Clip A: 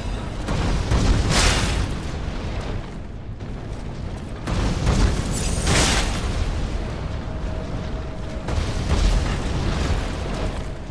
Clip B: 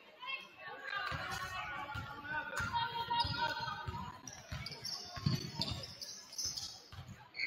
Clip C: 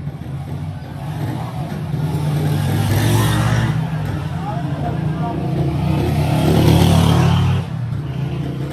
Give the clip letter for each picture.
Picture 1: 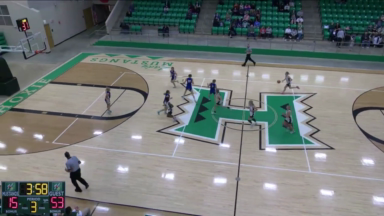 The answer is B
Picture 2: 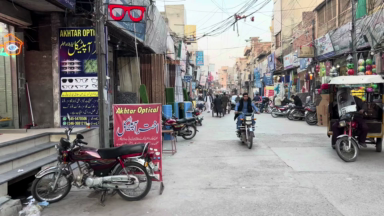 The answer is C